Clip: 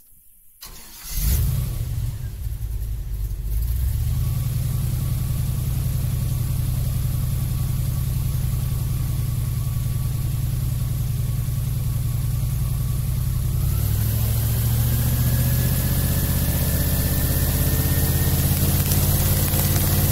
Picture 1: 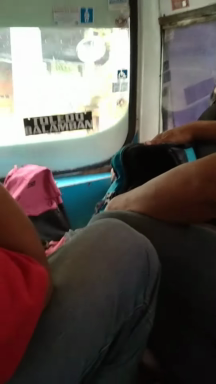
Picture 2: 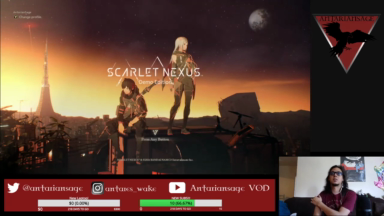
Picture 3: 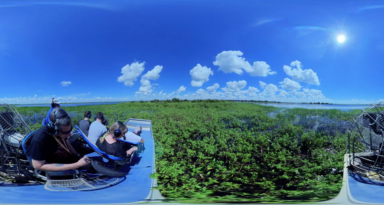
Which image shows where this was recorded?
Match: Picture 3